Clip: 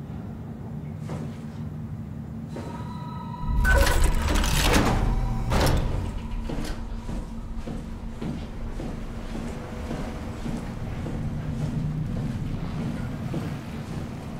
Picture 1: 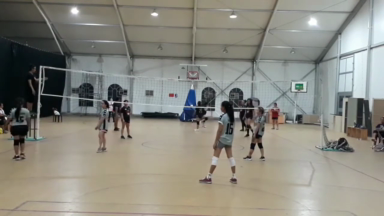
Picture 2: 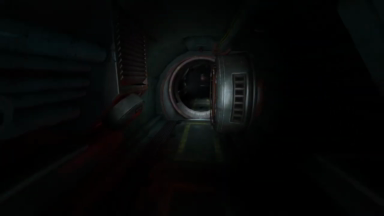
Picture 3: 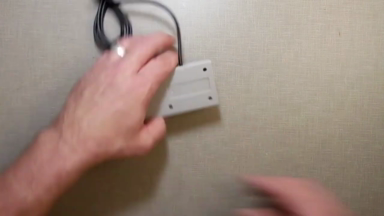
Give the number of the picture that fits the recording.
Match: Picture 2